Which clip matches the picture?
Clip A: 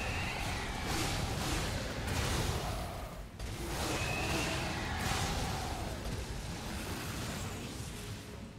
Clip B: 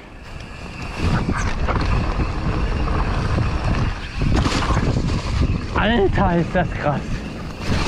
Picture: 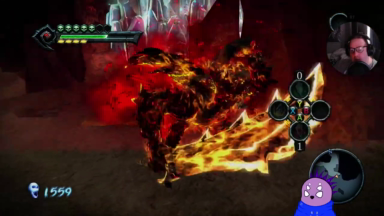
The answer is A